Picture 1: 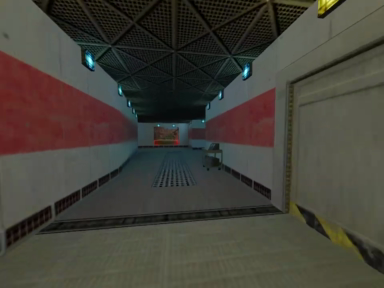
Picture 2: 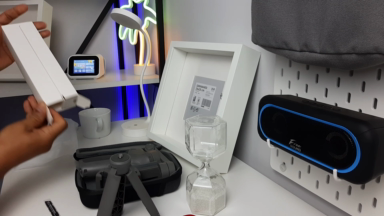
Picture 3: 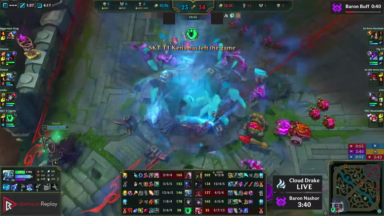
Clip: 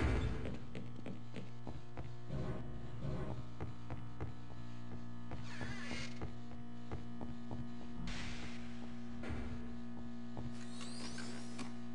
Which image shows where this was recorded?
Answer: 1